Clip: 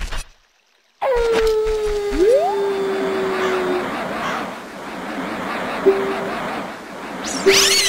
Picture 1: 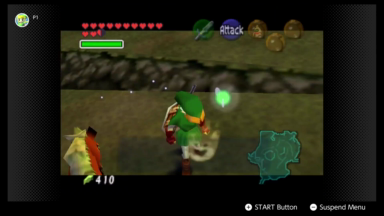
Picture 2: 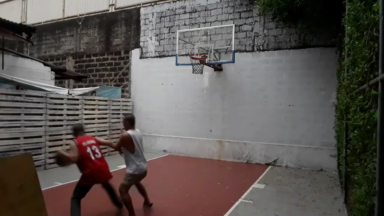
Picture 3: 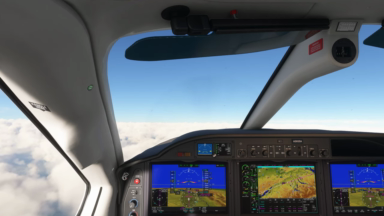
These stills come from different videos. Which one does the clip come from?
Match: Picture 1